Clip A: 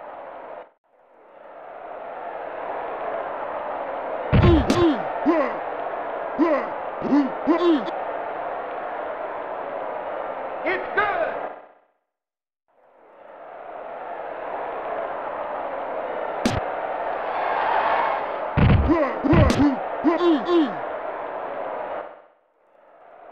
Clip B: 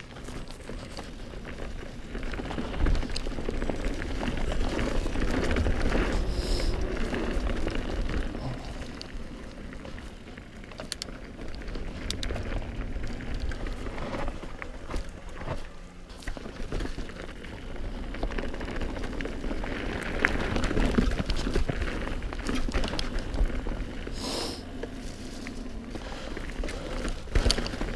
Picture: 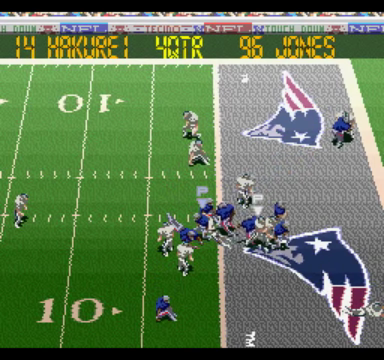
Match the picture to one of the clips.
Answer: A